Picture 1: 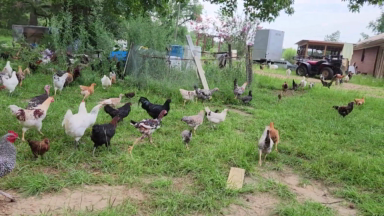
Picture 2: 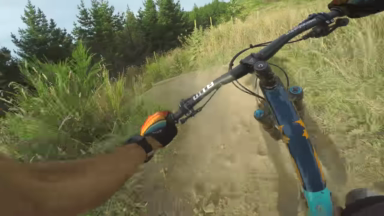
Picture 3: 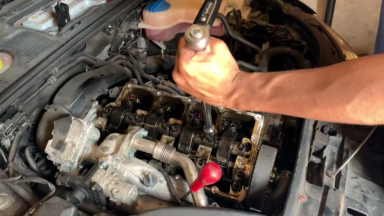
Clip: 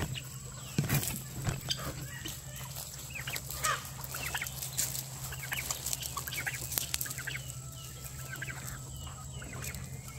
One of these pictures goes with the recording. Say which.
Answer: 1